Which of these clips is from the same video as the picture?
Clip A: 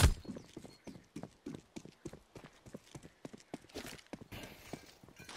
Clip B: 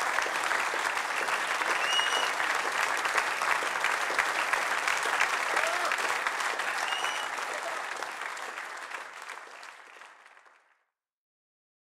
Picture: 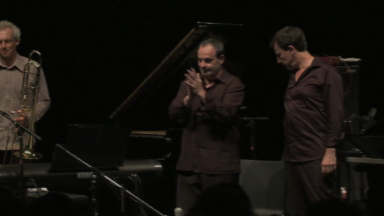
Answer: B